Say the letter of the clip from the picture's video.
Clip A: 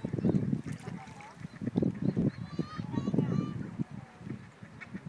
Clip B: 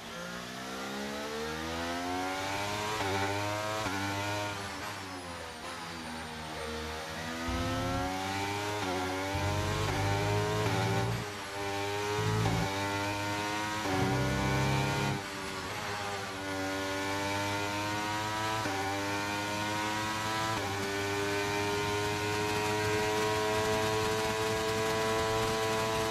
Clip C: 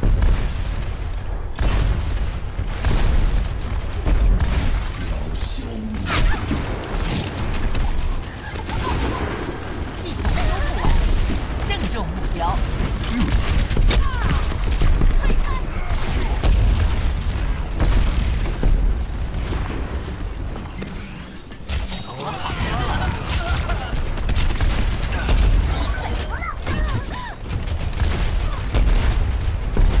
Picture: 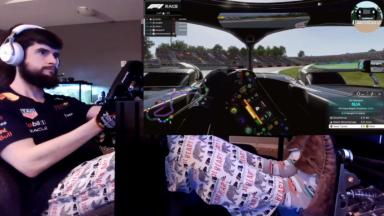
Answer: B